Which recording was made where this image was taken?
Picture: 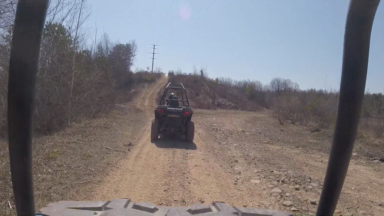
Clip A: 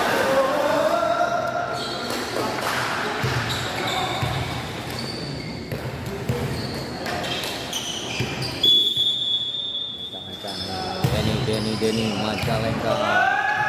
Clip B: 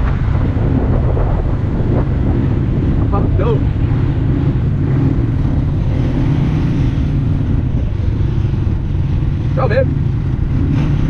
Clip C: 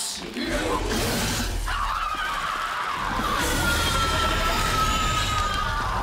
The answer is B